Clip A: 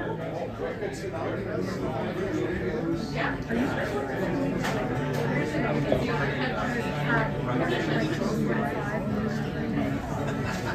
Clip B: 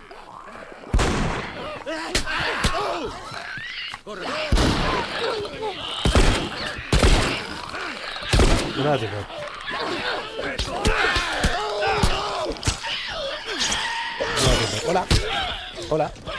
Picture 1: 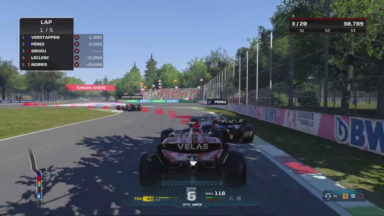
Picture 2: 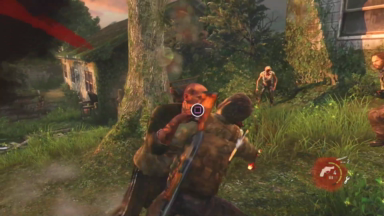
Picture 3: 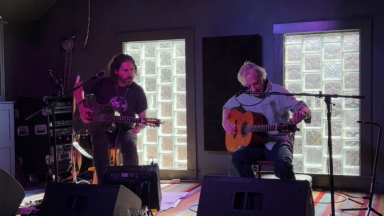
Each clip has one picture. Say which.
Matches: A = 3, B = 2